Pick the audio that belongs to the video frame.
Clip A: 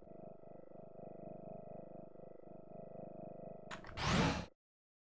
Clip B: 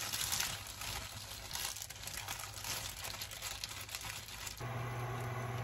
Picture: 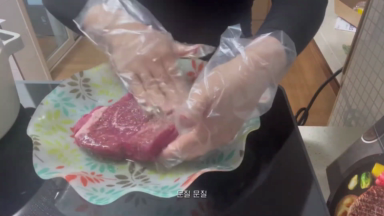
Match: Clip B